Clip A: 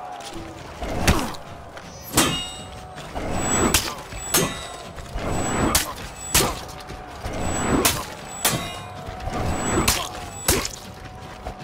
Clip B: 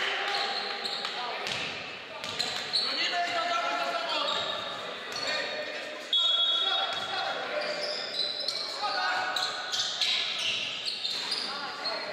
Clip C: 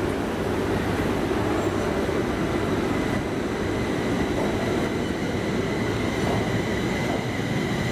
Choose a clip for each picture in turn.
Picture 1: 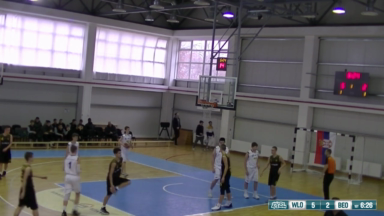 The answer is B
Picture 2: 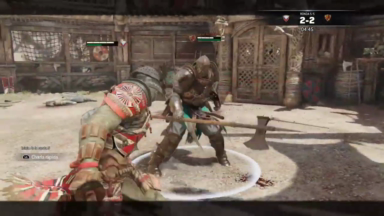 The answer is A